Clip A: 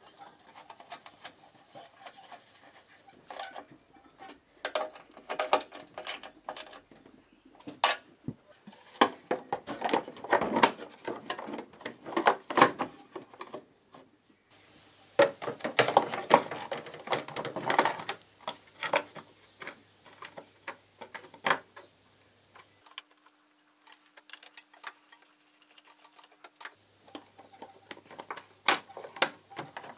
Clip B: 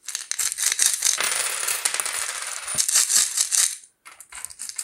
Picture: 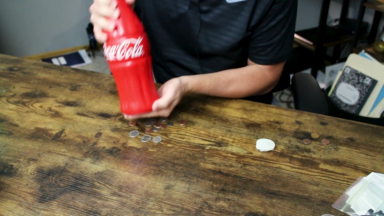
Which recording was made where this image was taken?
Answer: B